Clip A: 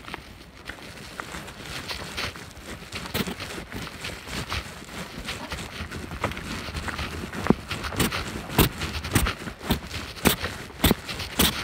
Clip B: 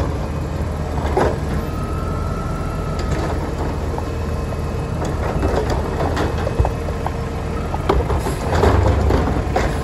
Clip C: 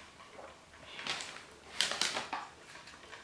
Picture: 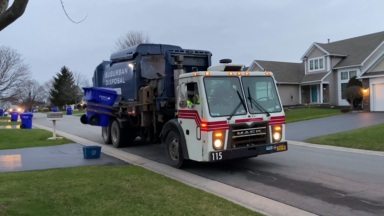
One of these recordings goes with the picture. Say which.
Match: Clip B